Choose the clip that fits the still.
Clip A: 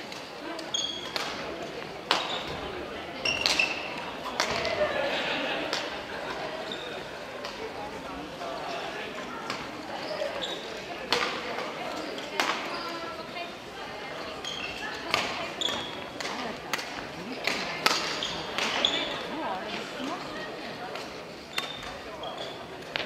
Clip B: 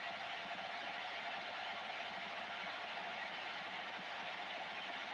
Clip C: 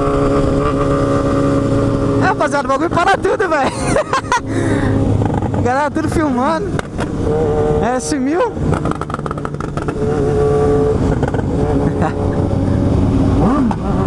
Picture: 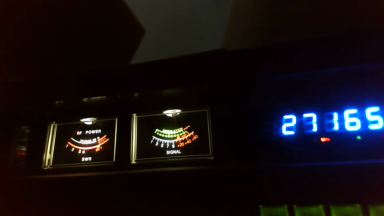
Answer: B